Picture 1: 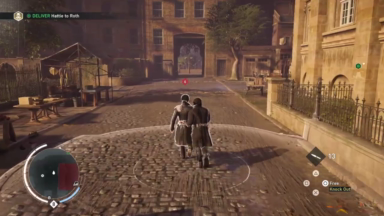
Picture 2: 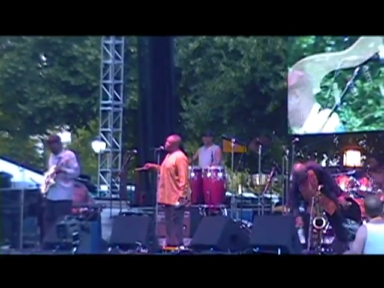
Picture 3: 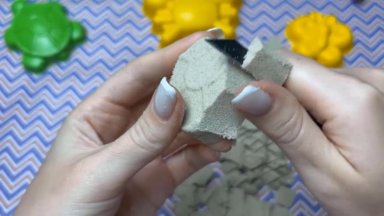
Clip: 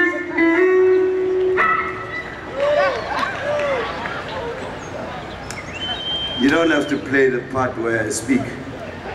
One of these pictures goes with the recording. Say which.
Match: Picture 2